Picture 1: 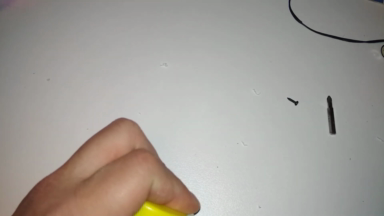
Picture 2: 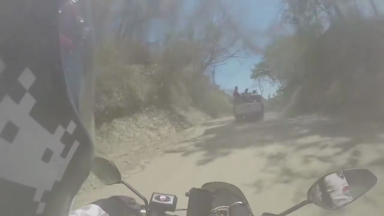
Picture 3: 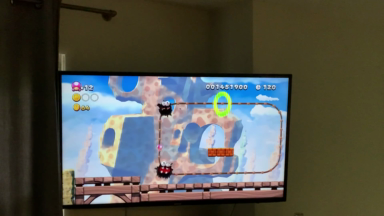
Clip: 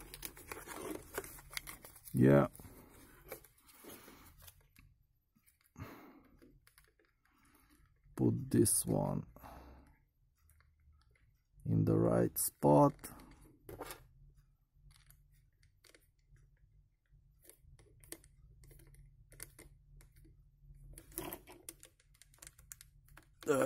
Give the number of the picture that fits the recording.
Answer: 1